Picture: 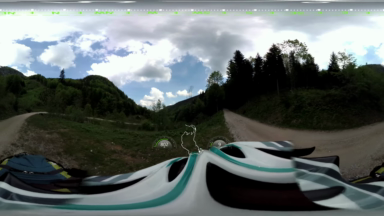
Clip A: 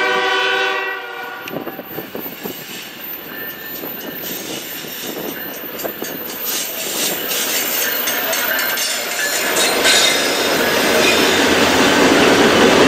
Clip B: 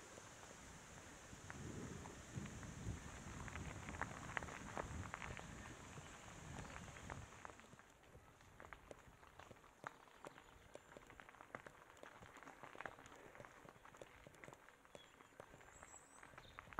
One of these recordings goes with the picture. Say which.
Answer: B